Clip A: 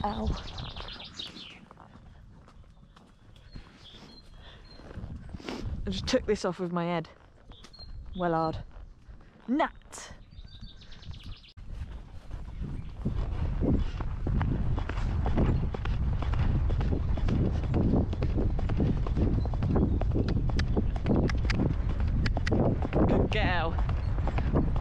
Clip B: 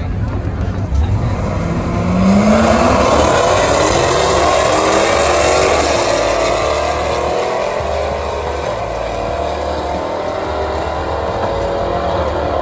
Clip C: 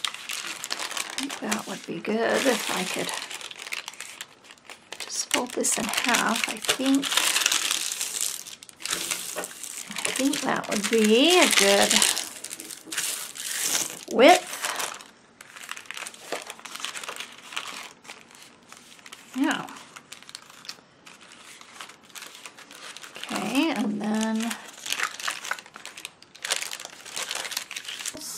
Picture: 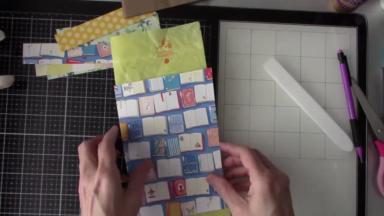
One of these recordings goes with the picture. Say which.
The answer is C